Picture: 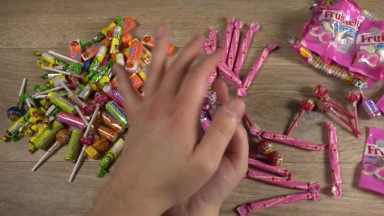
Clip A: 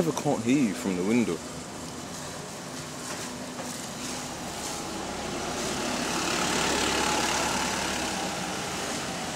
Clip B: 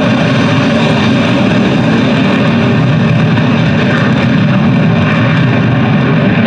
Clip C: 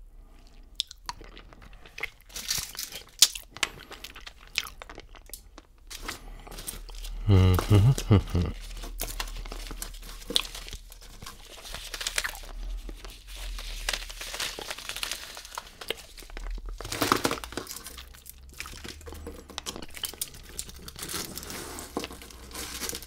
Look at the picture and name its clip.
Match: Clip C